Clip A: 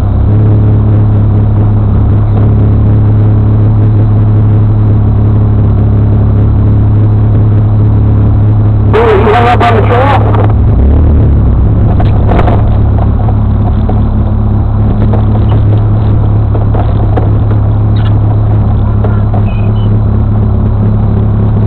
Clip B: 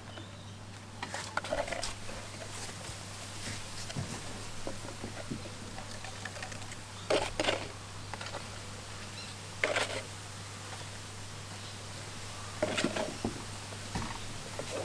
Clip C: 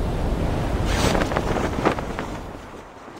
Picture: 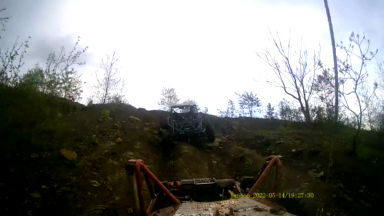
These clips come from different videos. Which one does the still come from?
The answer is A